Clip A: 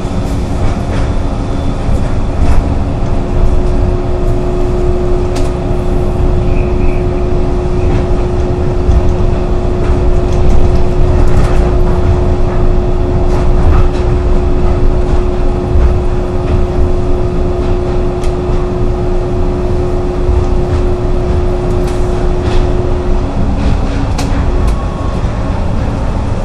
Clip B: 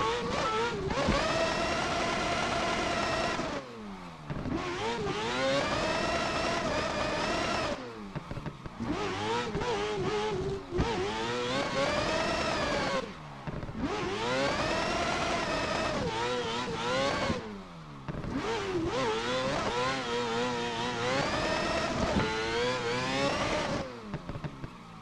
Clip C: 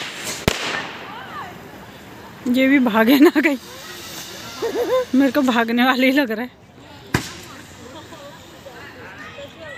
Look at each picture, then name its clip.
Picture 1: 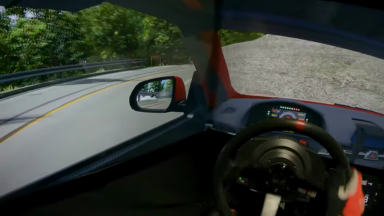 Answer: B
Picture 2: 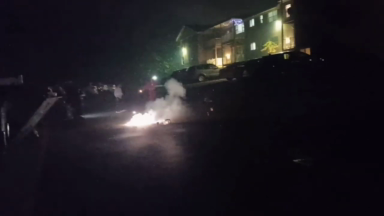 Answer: C